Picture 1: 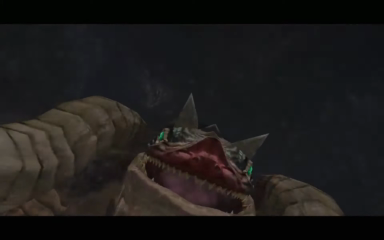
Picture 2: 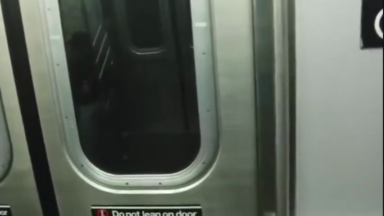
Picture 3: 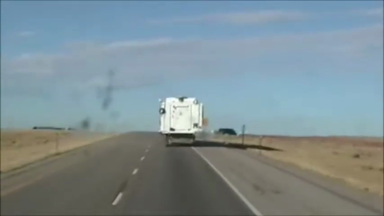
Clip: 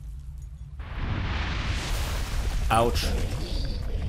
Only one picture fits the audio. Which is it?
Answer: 1